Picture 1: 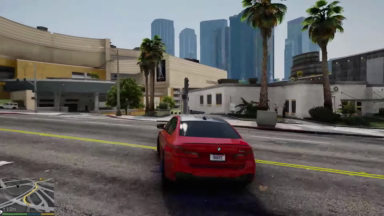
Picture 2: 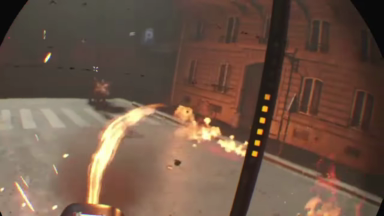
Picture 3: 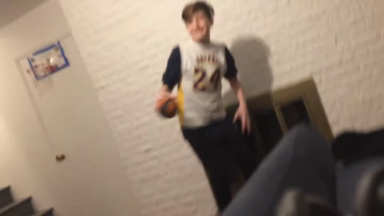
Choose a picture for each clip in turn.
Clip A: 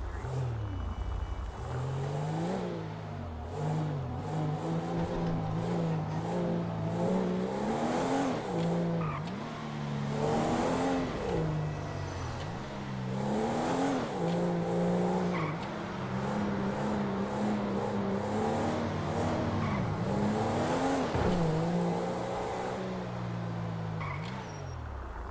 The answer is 1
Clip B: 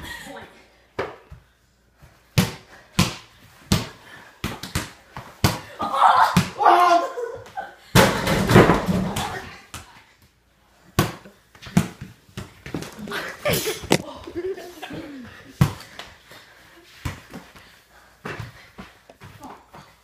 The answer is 3